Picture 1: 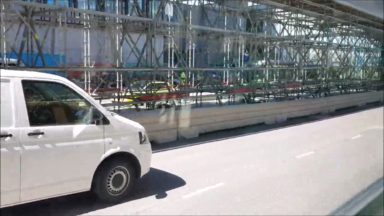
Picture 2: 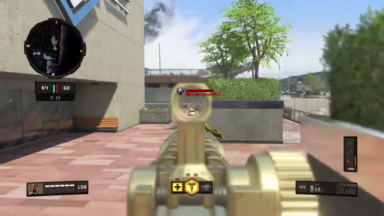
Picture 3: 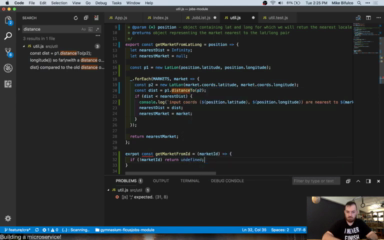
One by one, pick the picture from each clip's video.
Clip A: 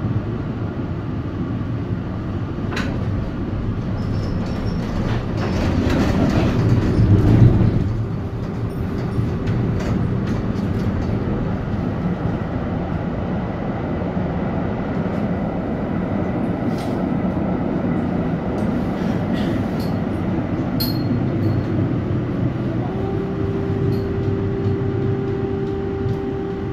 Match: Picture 1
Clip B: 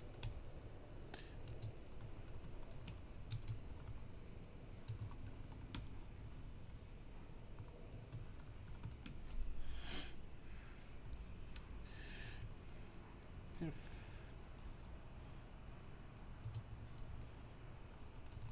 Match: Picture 3